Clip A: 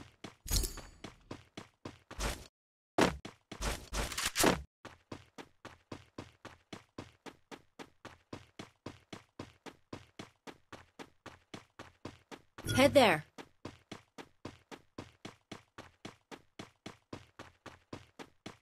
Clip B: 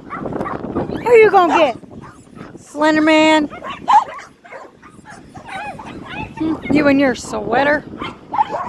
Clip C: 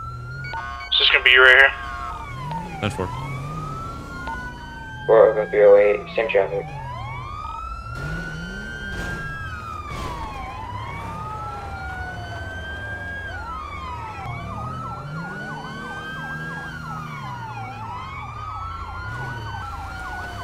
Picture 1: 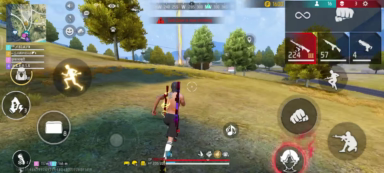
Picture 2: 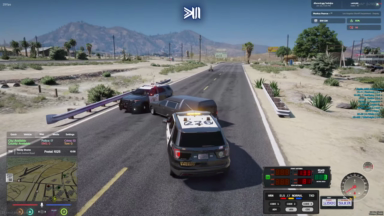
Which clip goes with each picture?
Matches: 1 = A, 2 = C